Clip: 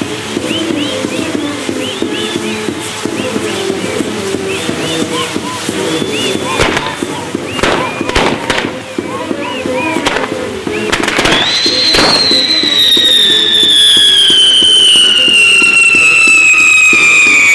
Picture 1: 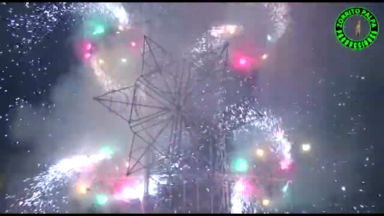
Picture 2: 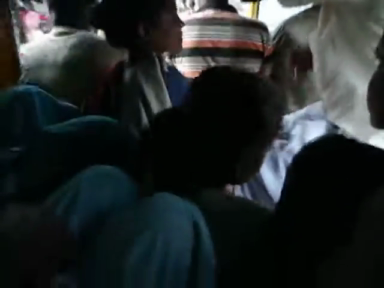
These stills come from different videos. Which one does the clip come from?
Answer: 1